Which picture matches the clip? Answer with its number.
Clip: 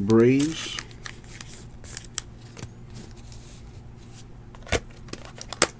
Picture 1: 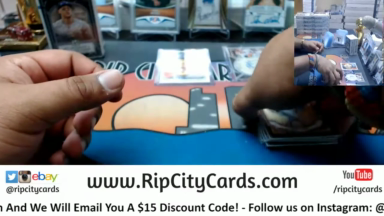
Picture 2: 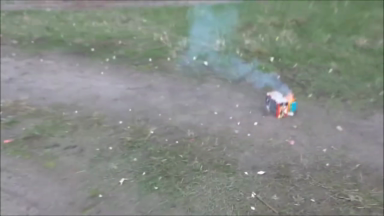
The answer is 1